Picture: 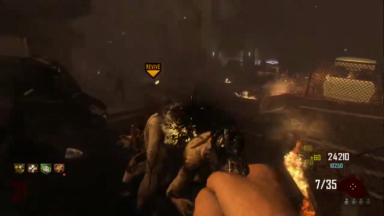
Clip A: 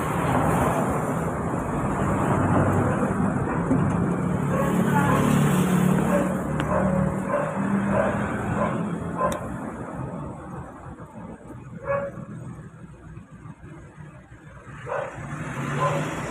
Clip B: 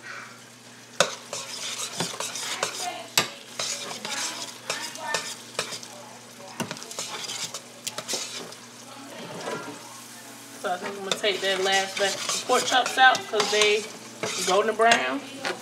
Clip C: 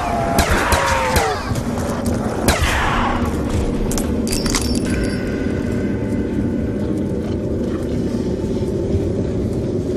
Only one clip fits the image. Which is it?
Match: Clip C